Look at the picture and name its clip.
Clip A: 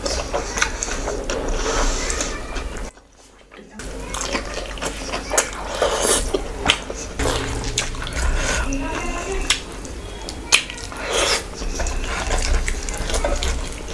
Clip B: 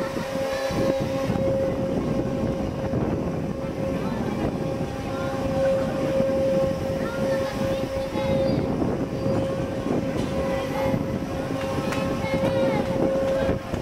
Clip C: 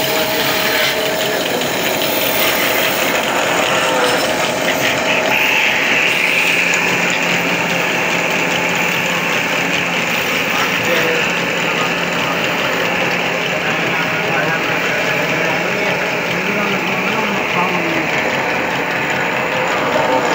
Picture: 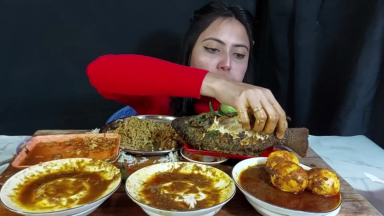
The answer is A